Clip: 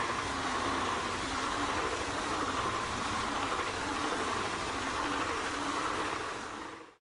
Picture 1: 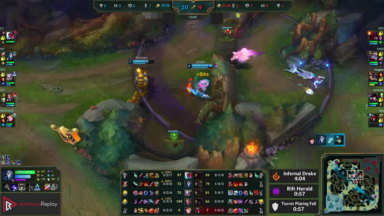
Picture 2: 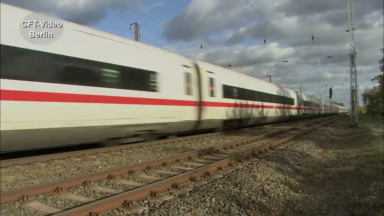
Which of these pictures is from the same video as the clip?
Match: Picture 2